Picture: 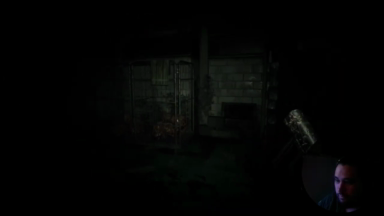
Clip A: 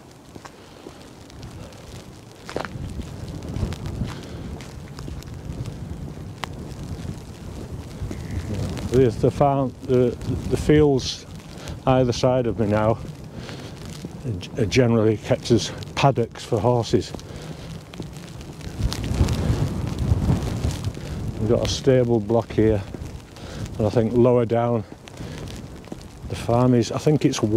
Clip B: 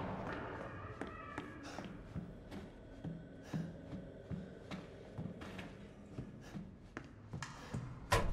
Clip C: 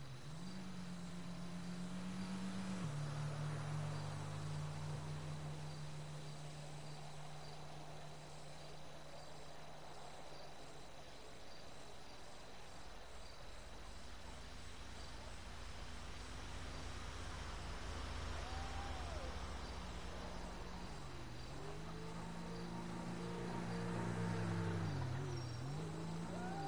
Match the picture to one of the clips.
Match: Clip B